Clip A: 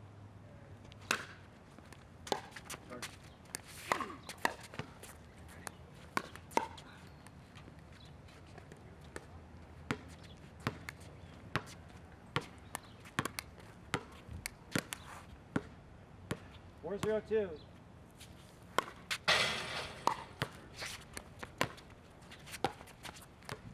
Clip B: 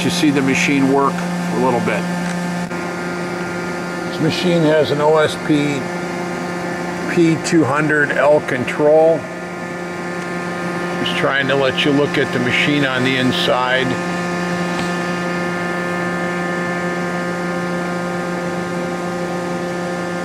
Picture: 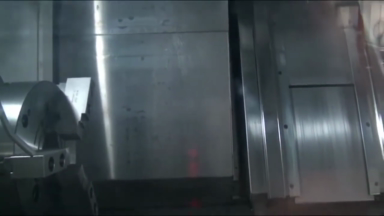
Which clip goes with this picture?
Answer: B